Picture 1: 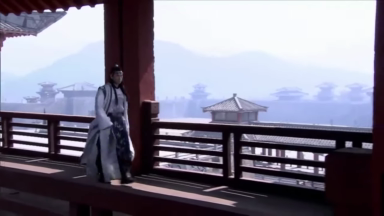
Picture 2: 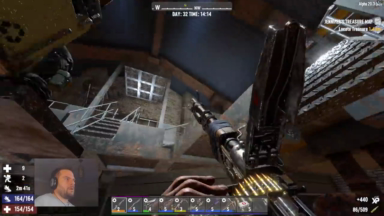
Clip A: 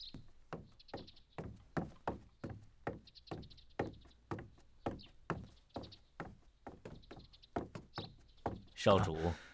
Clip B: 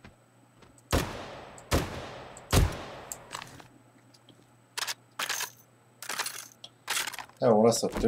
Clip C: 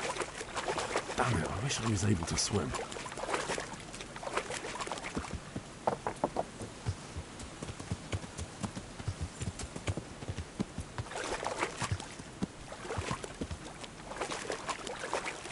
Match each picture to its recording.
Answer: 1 A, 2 B